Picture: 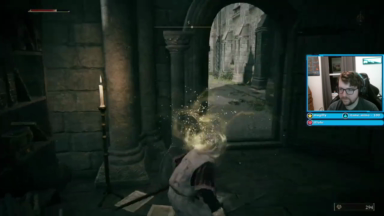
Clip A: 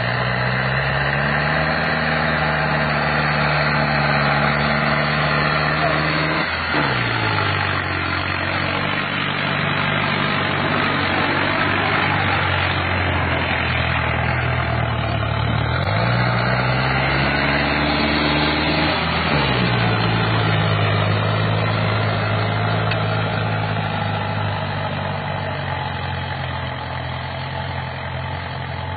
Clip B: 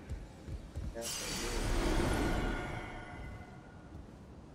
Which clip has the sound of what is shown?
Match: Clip B